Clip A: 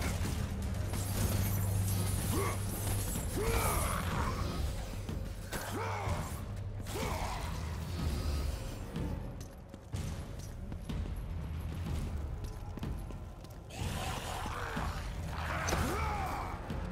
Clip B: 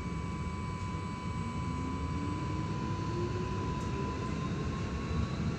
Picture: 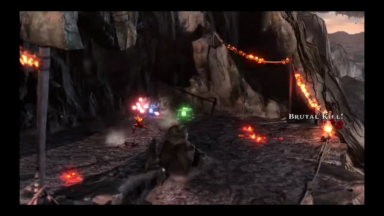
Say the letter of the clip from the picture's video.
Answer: A